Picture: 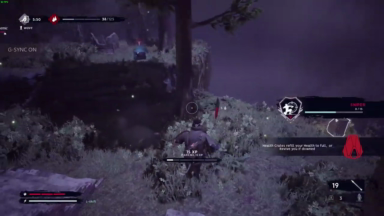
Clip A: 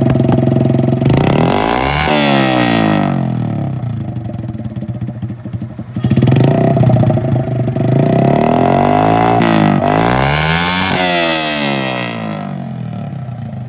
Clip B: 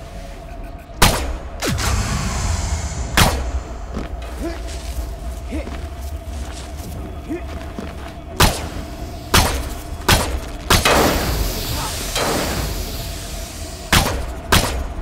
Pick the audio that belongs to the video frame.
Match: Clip B